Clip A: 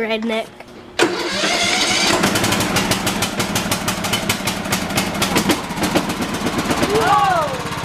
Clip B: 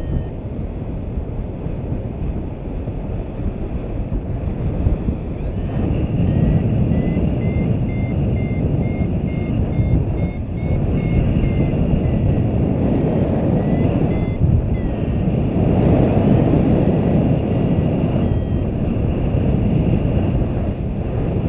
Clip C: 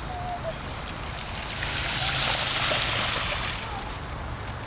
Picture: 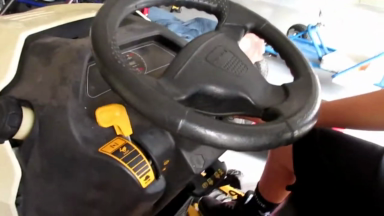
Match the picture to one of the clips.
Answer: A